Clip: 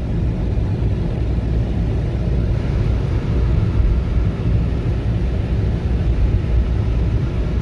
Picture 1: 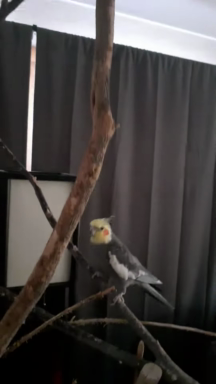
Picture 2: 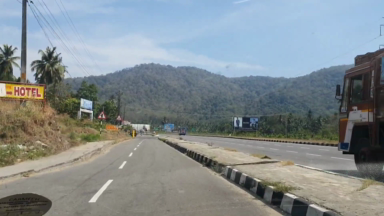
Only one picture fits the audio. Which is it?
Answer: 2